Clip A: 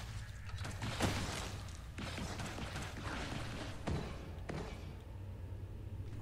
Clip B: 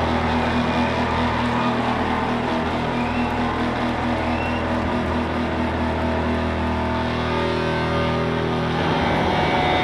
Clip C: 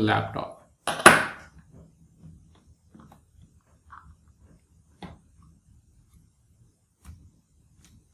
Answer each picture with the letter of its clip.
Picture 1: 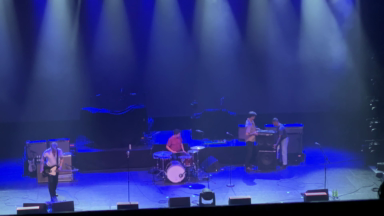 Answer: B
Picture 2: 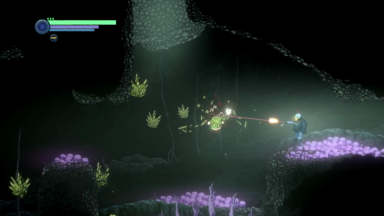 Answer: A